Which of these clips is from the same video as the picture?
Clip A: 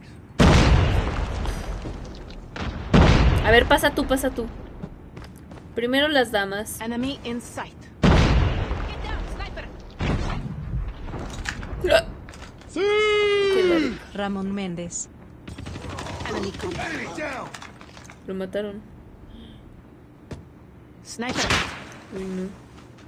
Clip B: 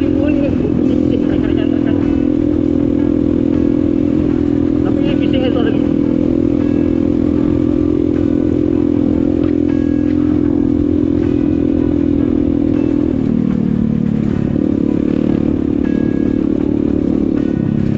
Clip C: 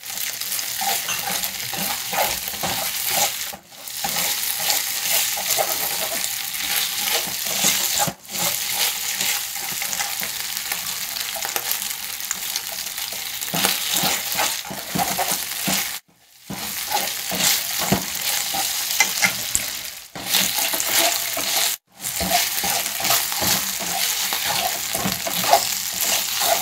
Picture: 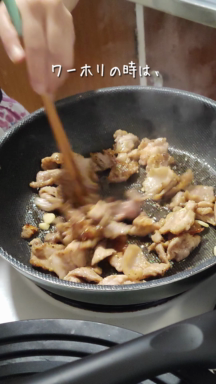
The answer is C